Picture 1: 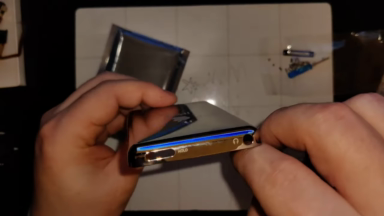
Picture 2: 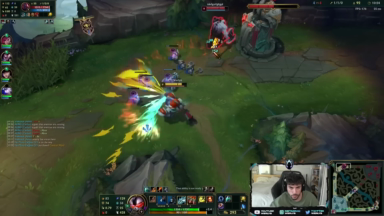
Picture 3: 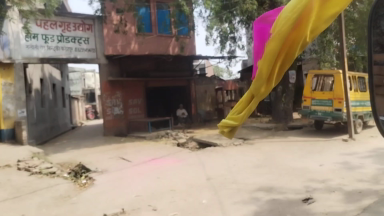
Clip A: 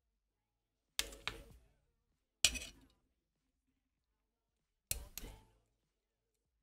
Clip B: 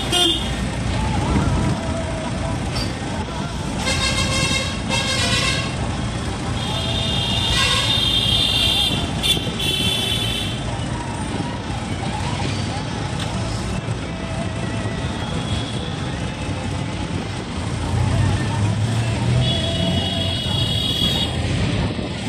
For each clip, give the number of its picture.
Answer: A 1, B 3